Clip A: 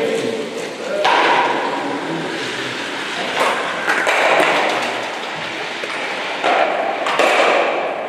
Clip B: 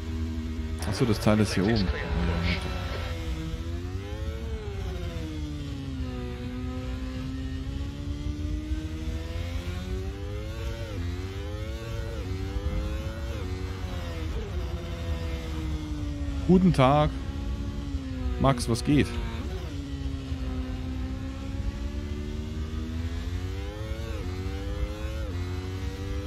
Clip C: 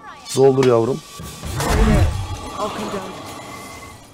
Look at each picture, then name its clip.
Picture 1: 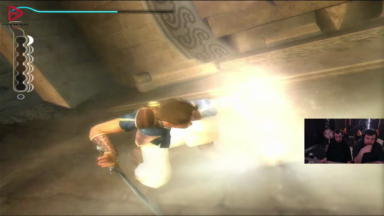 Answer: C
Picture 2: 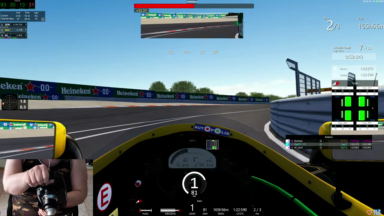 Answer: B